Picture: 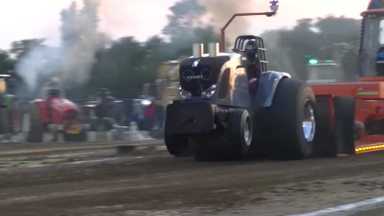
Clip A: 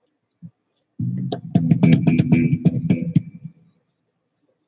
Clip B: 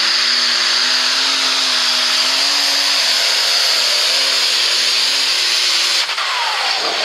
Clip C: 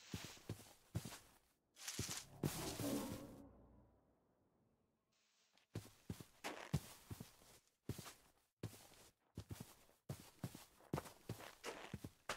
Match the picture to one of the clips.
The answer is B